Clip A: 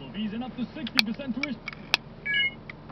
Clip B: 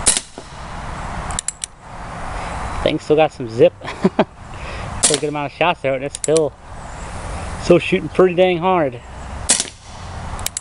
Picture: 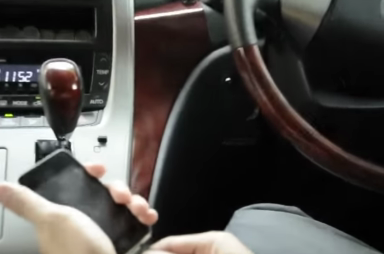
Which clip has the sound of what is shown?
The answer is A